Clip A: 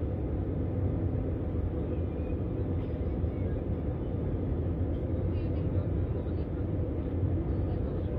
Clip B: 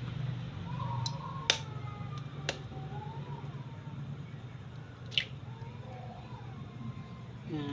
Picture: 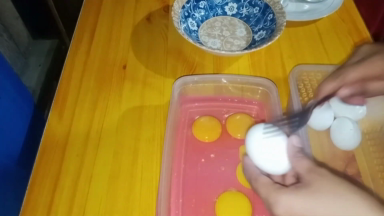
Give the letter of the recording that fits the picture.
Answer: B